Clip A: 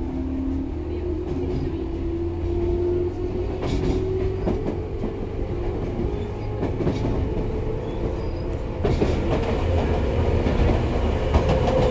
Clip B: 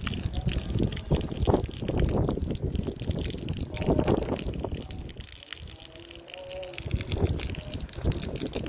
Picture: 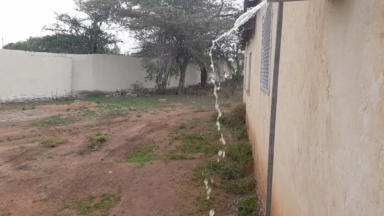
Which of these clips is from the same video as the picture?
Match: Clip B